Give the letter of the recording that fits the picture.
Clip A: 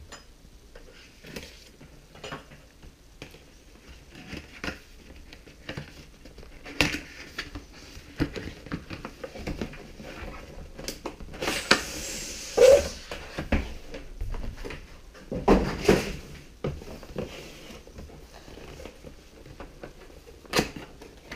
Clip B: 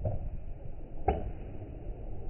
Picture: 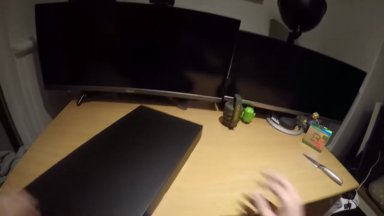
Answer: A